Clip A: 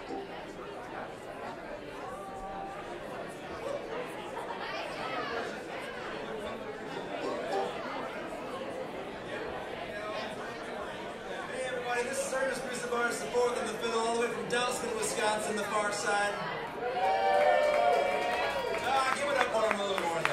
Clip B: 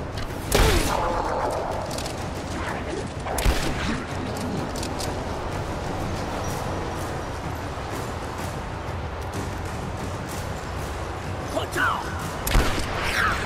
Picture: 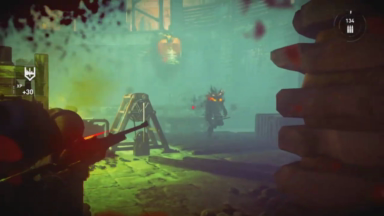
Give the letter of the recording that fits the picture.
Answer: B